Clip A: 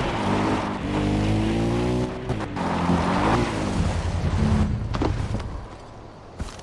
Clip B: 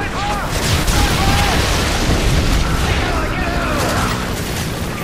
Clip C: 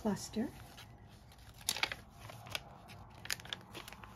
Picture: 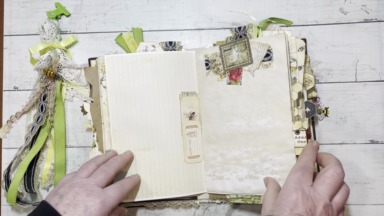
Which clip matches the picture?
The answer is C